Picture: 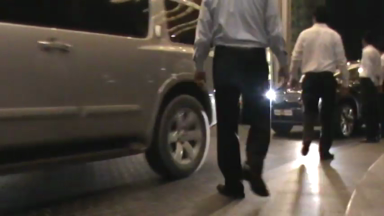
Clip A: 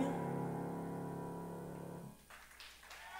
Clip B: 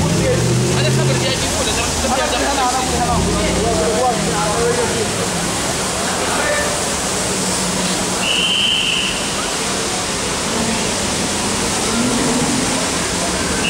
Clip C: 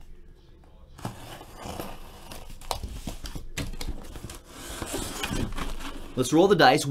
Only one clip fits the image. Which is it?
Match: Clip B